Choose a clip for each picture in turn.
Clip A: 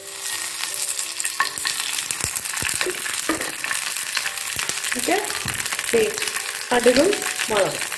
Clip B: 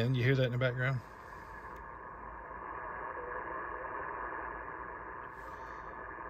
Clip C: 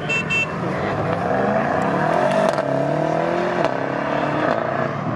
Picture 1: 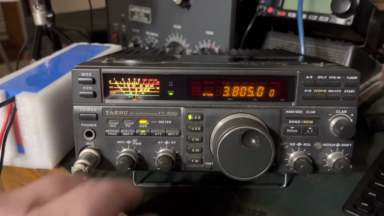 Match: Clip B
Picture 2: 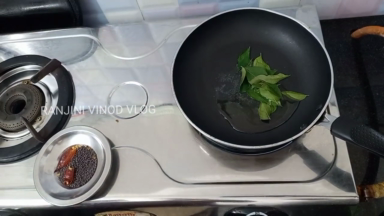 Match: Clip A